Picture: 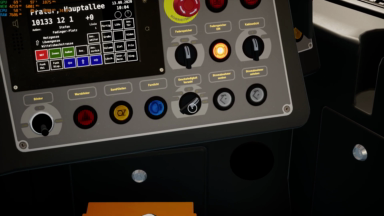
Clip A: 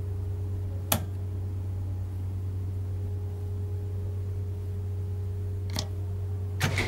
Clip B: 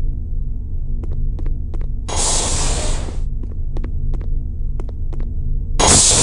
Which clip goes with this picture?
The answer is A